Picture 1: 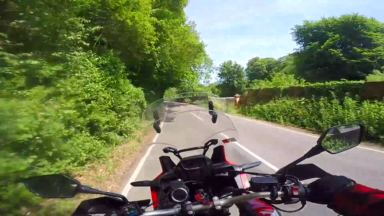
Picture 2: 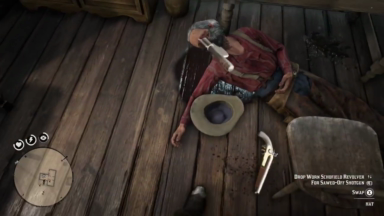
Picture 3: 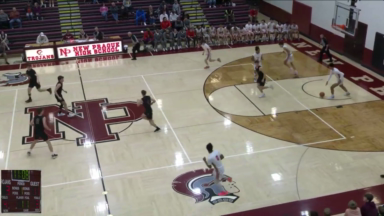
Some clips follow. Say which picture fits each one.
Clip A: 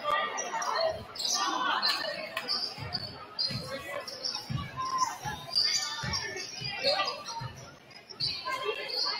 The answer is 3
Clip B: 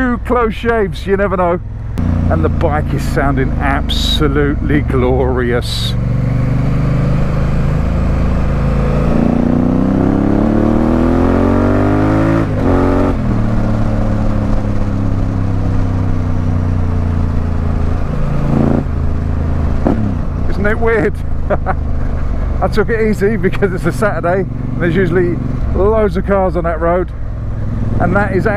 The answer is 1